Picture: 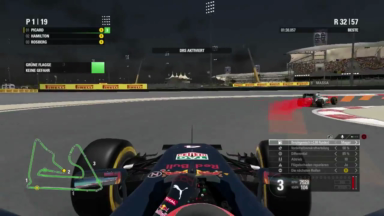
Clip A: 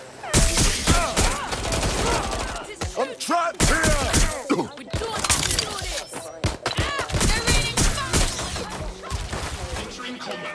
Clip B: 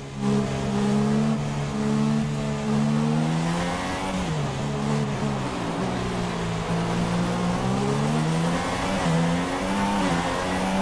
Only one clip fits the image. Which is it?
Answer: B